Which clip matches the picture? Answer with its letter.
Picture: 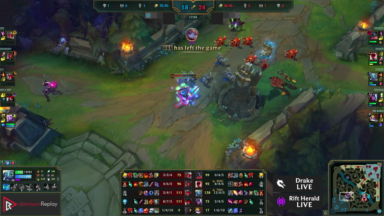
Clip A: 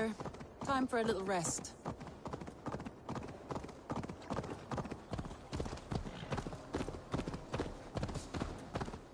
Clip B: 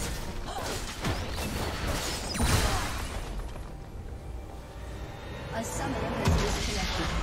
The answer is B